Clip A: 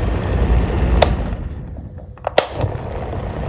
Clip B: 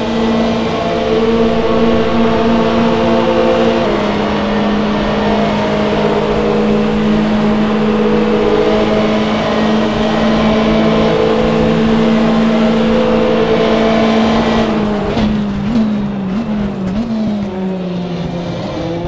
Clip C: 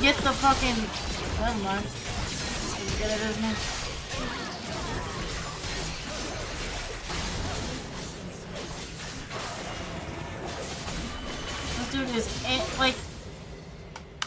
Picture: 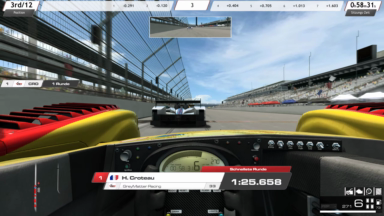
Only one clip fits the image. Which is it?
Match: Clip B